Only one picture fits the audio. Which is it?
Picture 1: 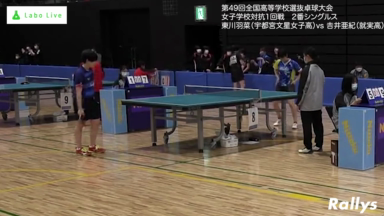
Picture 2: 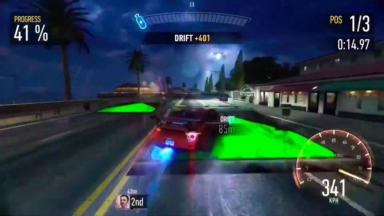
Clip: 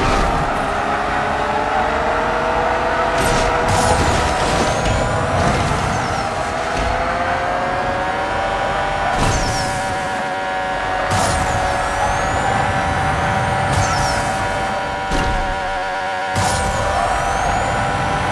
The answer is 2